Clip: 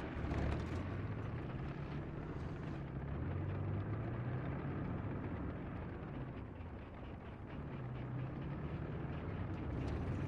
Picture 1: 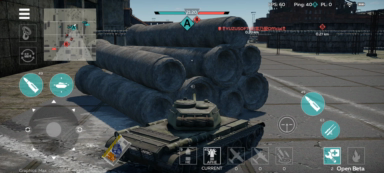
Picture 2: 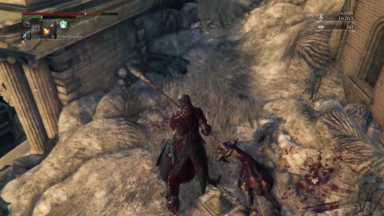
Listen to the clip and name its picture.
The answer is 1